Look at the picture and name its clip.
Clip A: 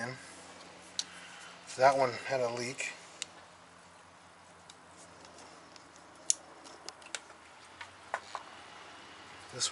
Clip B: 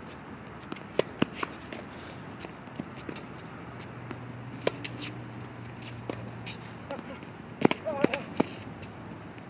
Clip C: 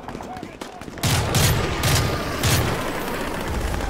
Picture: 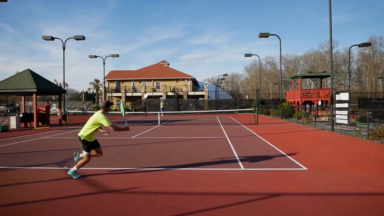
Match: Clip B